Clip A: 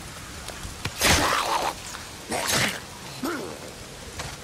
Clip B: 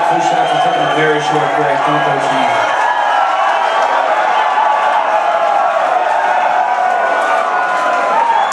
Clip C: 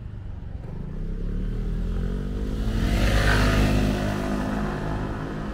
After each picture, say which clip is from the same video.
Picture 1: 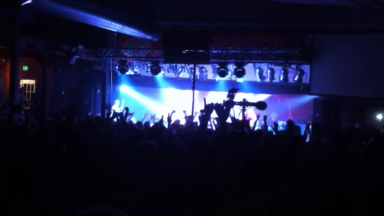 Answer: B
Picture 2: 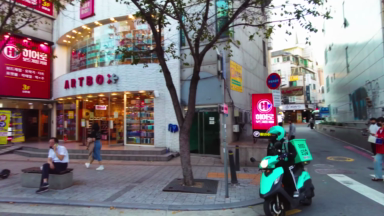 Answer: C